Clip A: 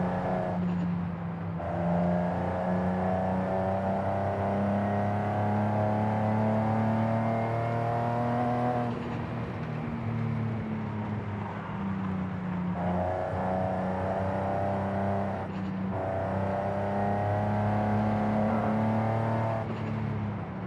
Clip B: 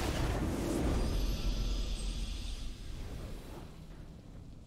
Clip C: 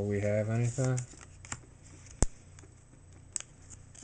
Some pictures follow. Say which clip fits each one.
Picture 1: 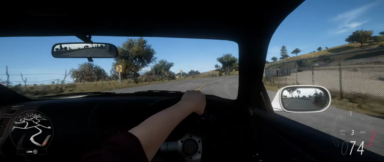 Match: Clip A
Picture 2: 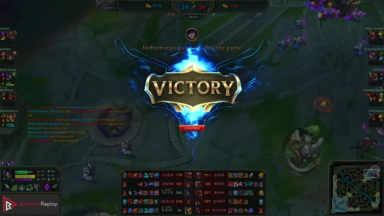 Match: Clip B